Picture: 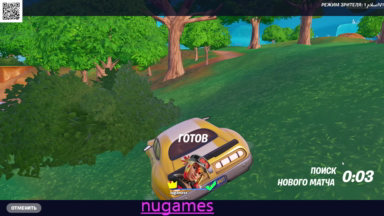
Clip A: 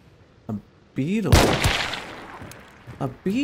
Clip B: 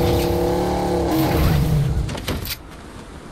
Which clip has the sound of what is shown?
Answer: B